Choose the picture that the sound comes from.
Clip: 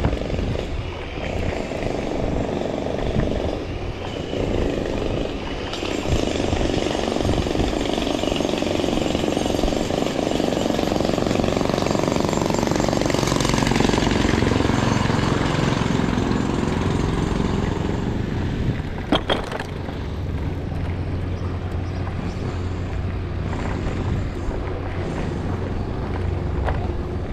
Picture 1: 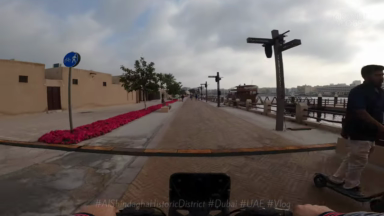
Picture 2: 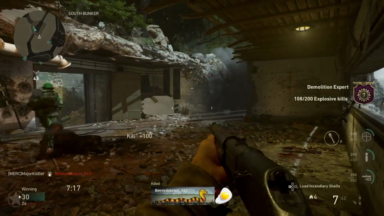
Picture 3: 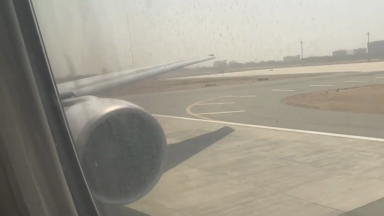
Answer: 1